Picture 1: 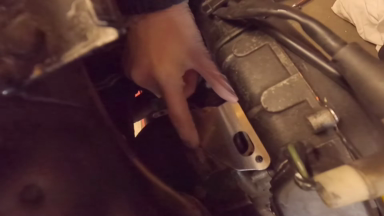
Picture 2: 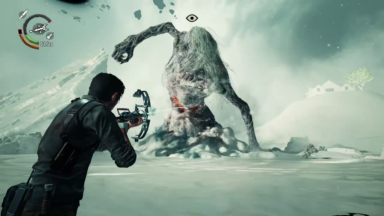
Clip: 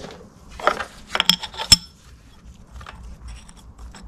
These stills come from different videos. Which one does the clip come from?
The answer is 1